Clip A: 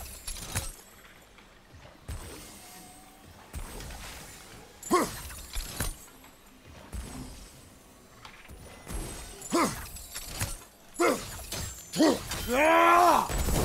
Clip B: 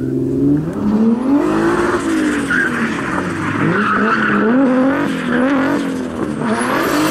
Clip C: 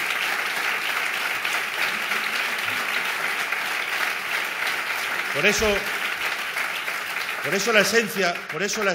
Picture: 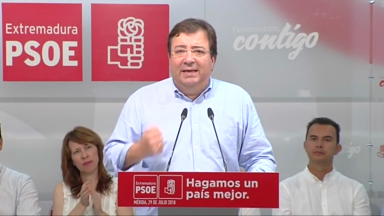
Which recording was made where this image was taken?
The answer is C